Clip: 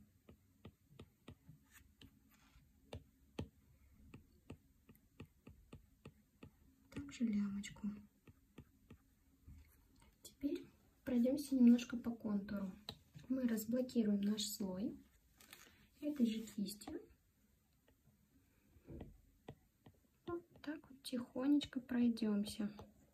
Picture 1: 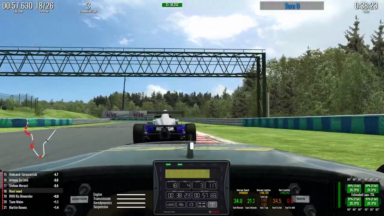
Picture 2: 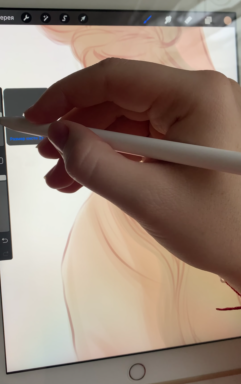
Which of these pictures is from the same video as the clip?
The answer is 2